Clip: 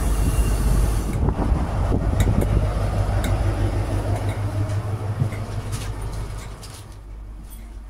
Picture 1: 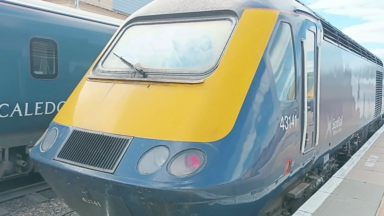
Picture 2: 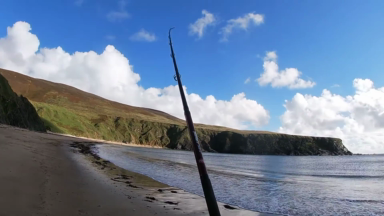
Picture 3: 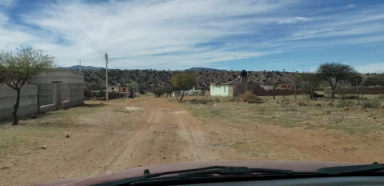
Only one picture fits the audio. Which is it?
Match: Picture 1